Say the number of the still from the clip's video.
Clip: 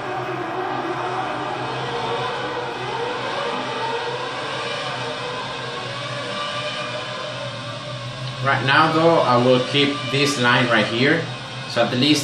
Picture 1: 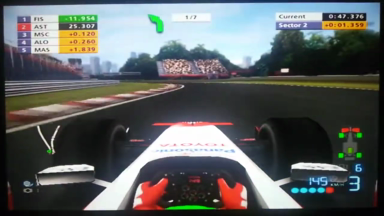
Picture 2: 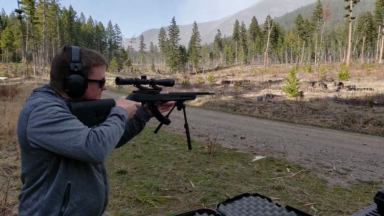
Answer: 1